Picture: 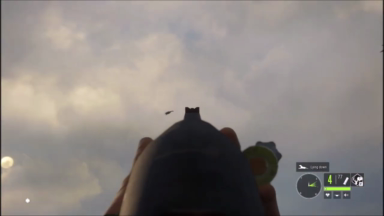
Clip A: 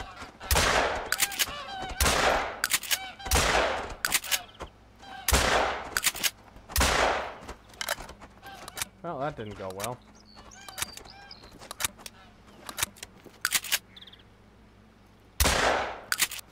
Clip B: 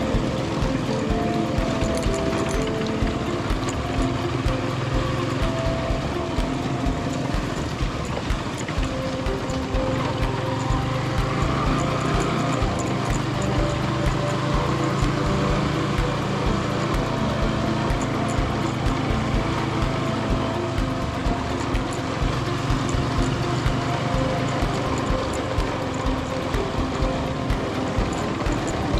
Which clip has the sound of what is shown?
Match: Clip A